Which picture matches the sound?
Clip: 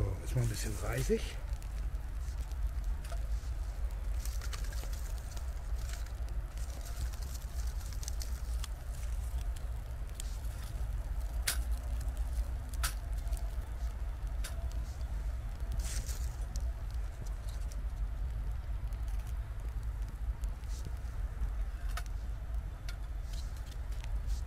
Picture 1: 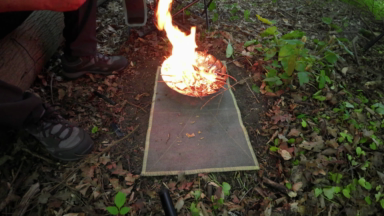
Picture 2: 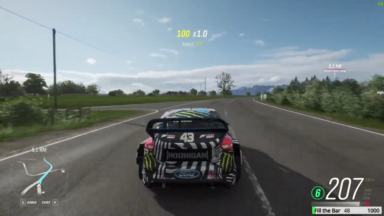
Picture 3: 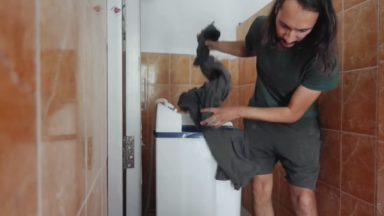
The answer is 1